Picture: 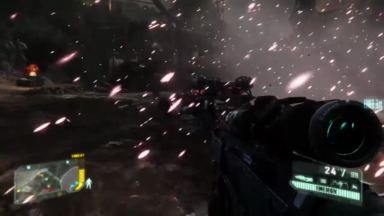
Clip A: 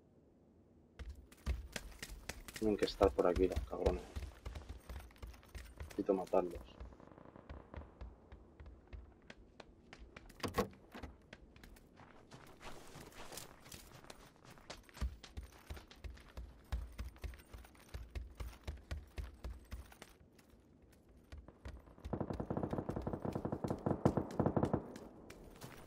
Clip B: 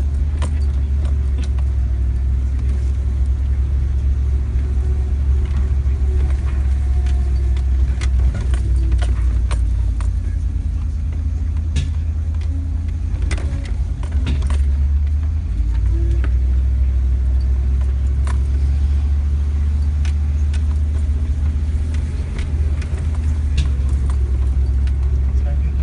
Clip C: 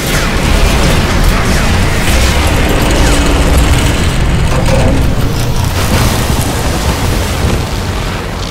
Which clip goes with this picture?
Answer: C